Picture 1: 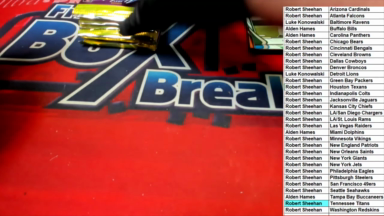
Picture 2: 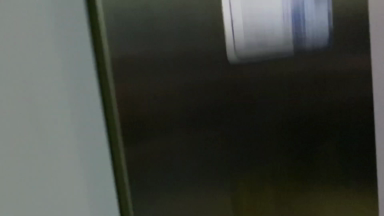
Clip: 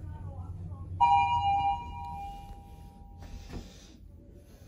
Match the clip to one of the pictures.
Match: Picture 2